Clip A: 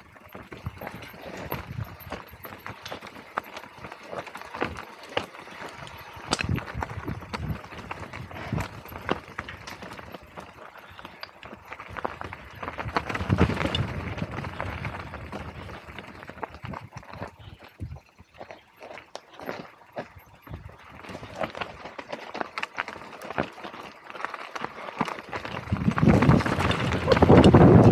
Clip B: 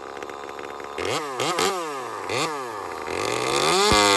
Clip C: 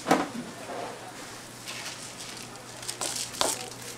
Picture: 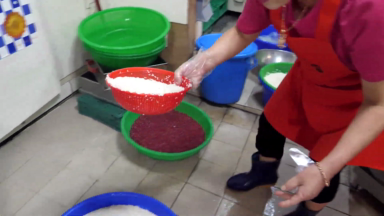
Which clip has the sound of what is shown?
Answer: C